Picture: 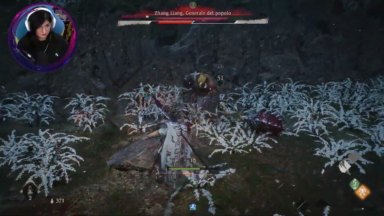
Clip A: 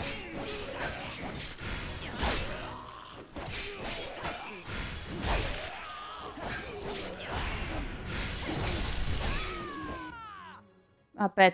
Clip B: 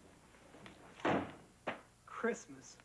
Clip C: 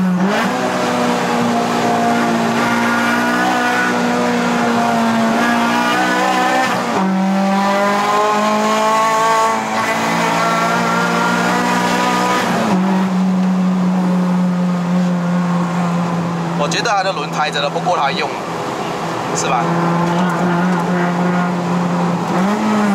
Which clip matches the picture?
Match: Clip A